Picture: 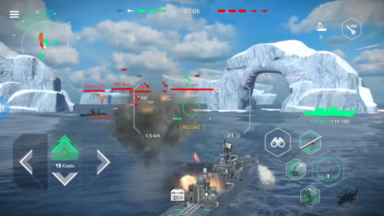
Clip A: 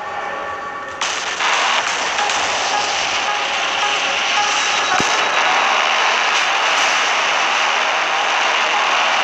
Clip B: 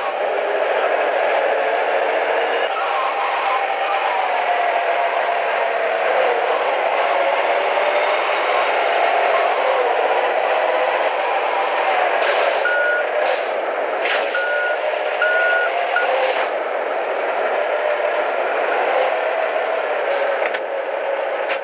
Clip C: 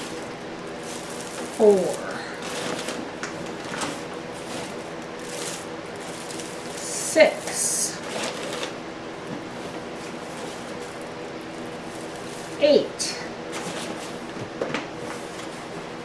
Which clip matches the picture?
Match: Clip A